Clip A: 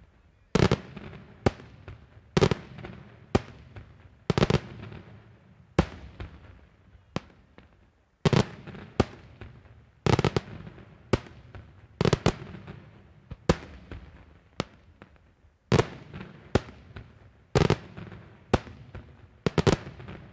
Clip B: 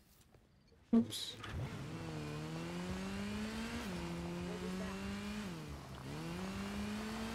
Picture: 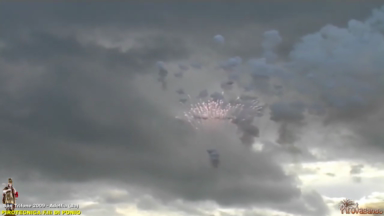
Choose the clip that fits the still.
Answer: A